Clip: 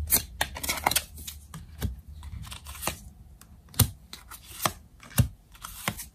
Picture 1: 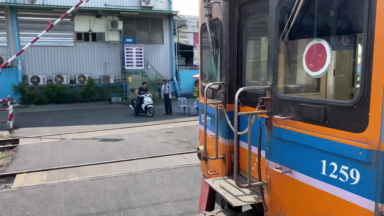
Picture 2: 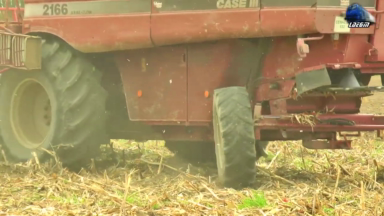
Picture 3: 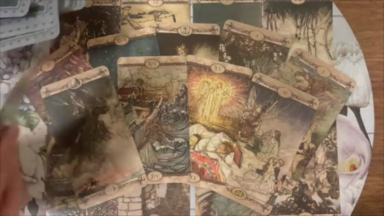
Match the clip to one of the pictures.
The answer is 3